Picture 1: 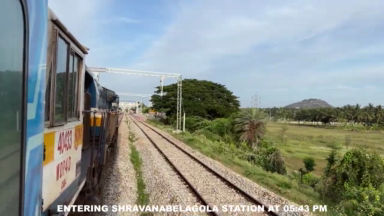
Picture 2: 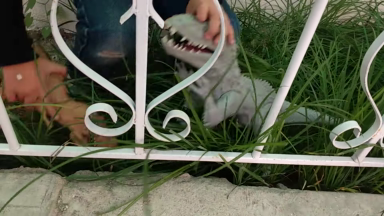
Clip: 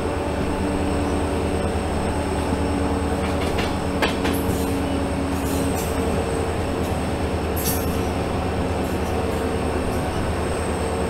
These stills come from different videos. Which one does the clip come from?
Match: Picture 1